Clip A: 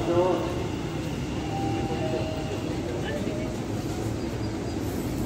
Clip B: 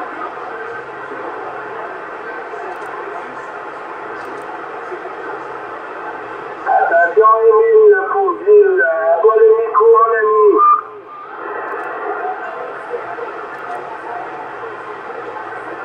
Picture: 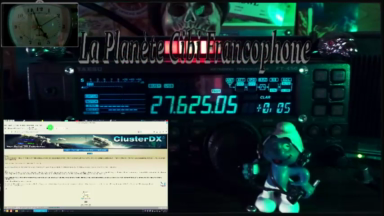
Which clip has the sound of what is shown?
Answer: B